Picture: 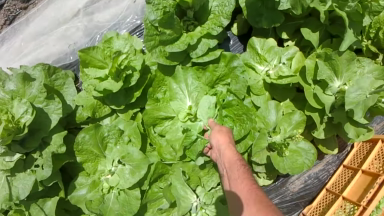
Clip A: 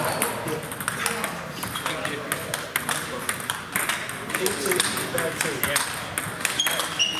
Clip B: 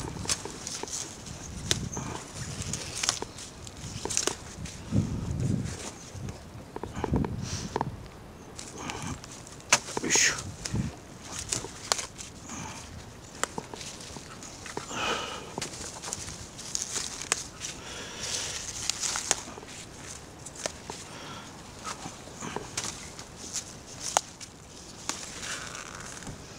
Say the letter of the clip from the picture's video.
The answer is B